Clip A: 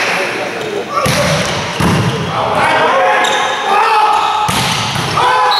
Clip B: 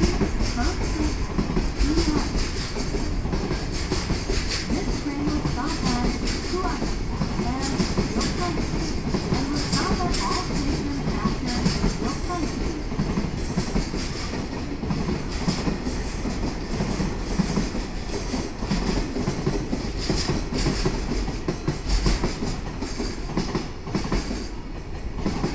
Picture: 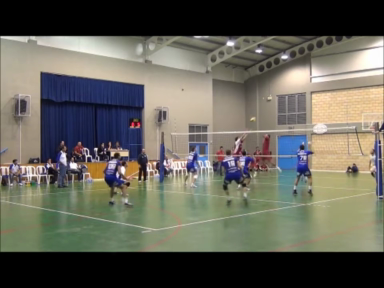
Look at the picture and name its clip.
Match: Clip A